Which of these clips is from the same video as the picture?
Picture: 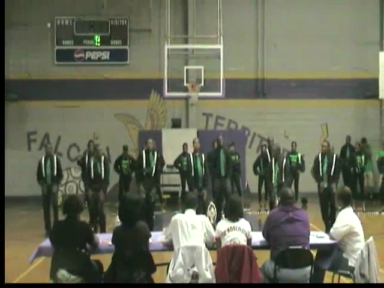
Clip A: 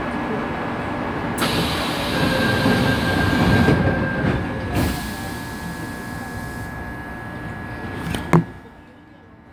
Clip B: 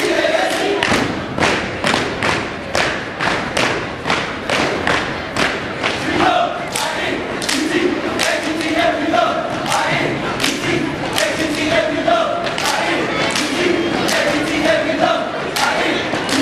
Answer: B